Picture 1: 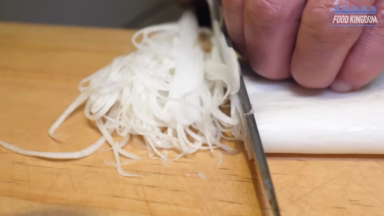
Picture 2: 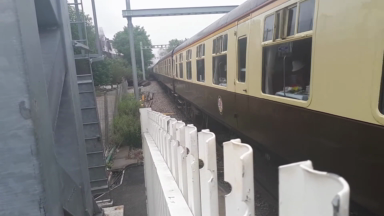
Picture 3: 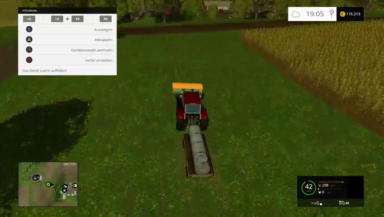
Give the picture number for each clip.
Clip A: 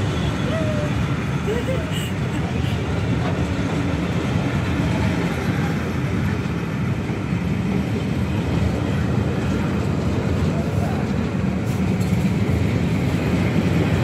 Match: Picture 2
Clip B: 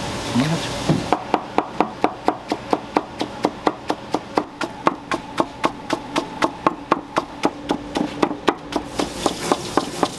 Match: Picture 1